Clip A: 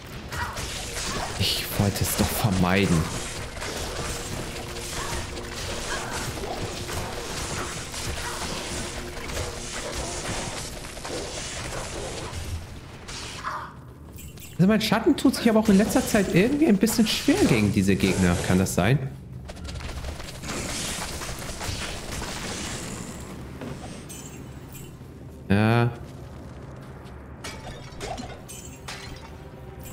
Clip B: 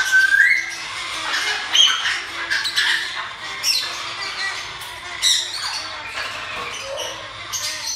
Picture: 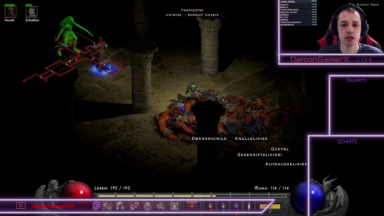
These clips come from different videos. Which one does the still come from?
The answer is A